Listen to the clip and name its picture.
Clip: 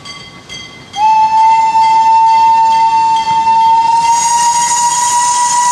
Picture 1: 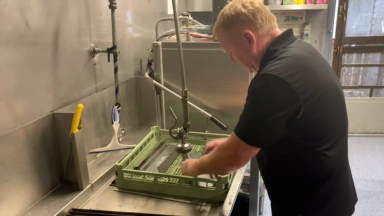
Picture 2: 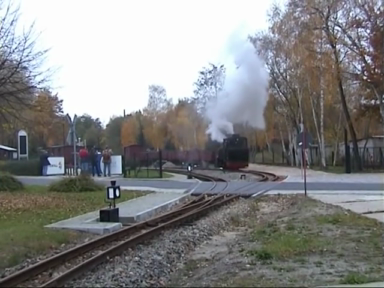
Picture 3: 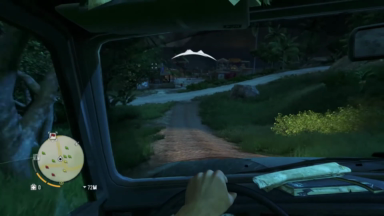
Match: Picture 2